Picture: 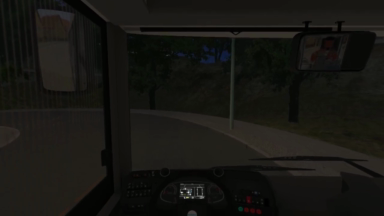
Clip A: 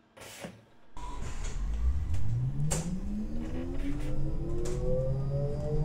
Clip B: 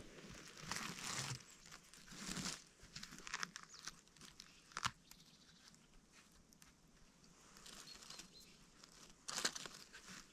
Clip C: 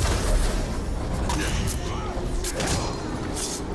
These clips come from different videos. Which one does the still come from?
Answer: A